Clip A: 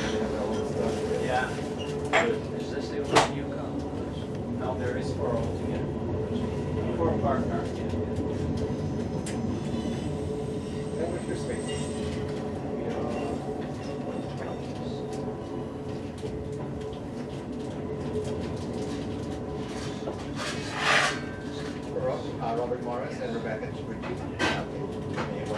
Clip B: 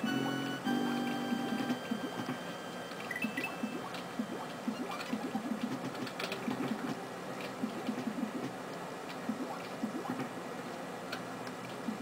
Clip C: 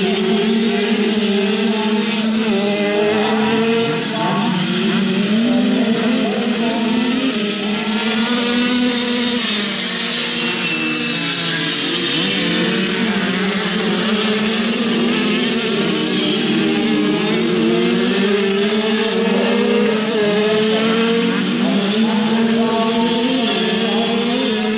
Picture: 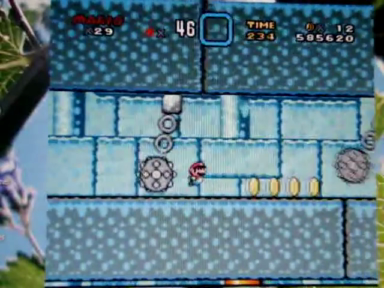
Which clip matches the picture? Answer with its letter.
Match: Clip B